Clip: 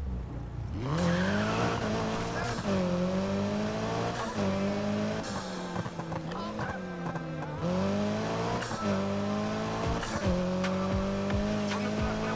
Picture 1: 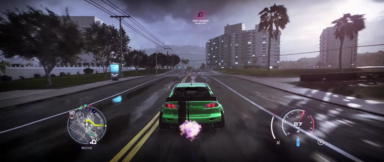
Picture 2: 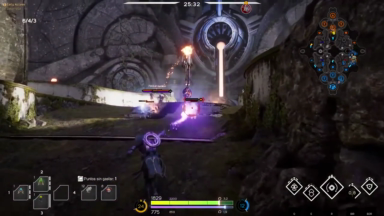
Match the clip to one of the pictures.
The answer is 1